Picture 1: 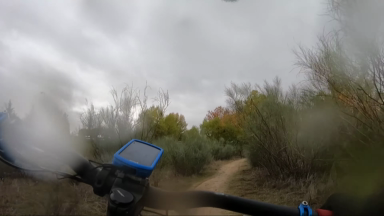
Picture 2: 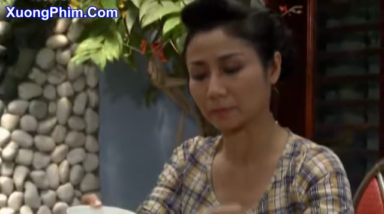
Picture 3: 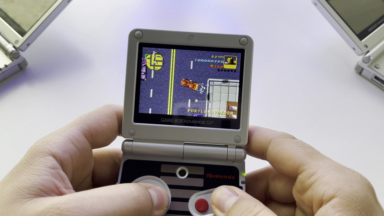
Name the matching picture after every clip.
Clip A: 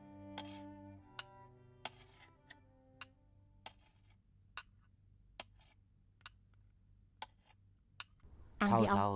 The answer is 2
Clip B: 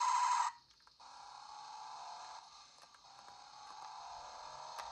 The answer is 3